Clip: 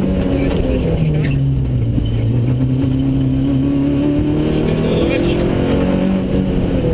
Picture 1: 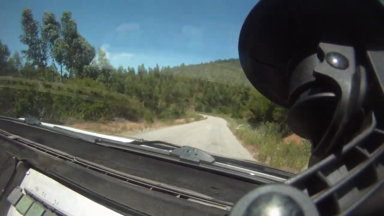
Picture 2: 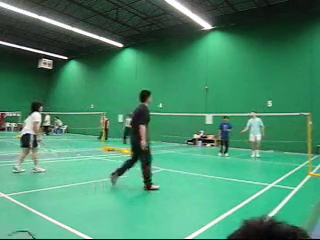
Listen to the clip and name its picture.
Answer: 1